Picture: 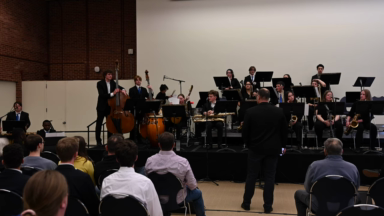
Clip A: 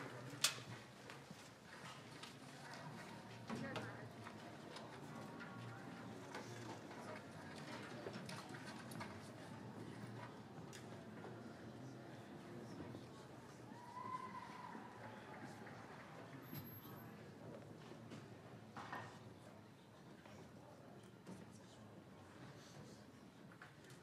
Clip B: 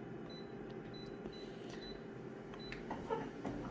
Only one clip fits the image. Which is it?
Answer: A